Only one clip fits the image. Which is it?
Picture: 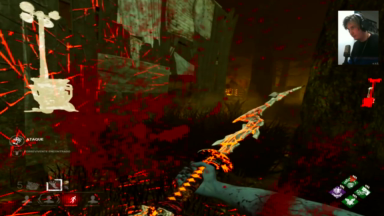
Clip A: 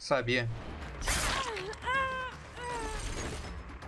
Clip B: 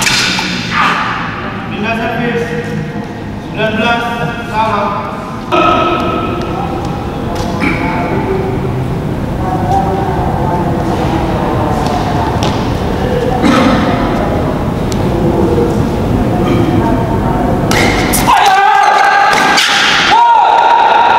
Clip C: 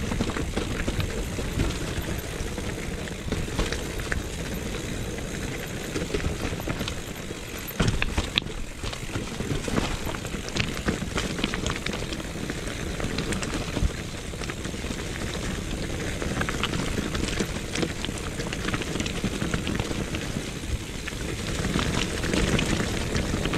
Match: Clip A